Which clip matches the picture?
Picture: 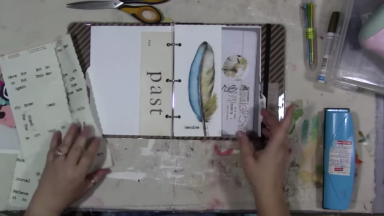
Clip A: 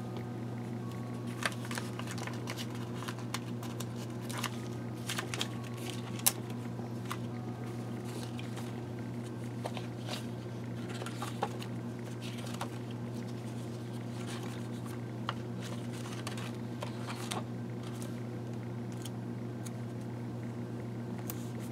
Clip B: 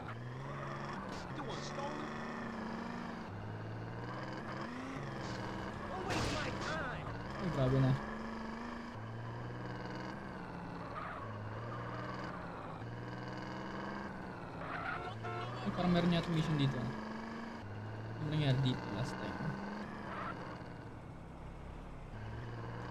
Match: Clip A